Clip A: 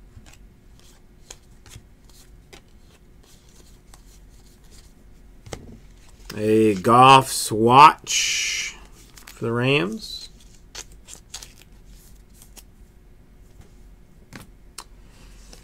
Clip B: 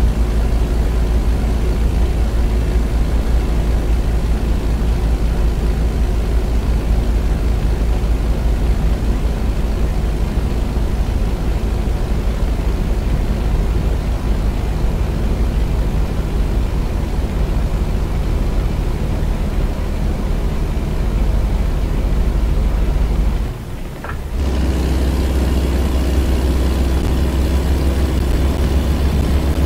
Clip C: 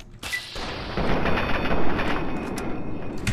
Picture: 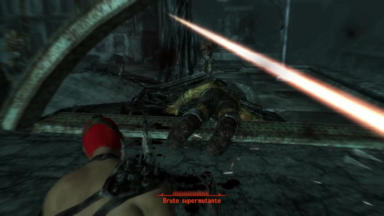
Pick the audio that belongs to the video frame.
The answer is C